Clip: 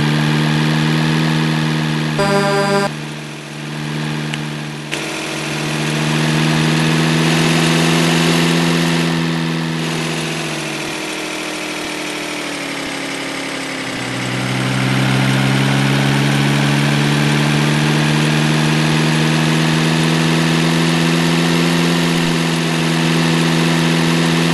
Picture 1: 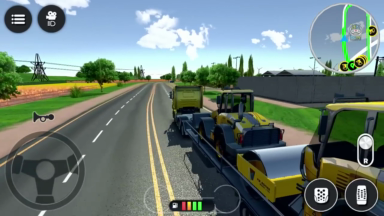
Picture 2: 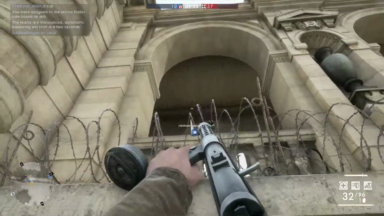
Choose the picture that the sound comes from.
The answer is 1